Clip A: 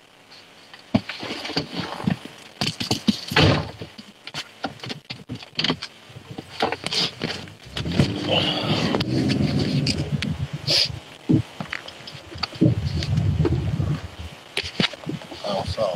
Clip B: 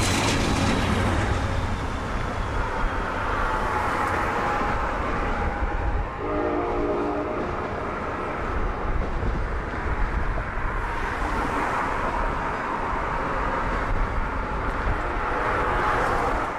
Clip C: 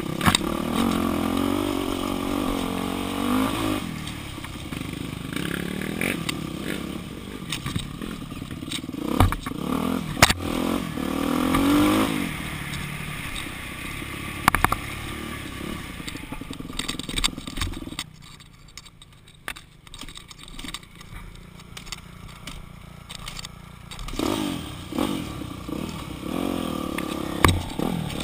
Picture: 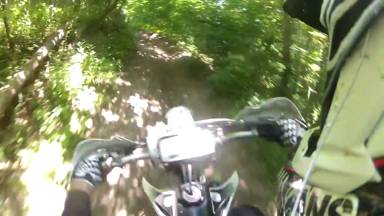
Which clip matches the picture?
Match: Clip C